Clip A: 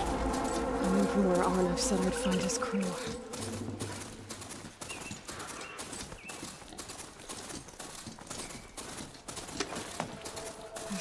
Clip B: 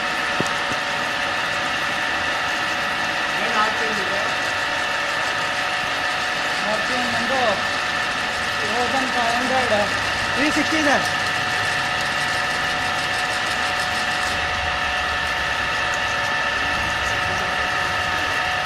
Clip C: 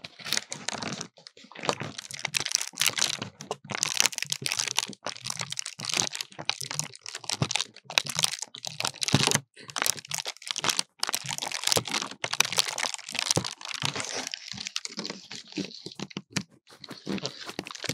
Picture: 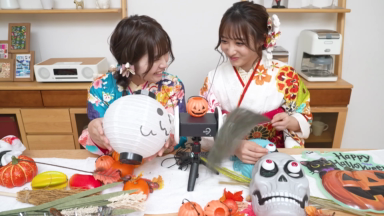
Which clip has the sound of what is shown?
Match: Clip C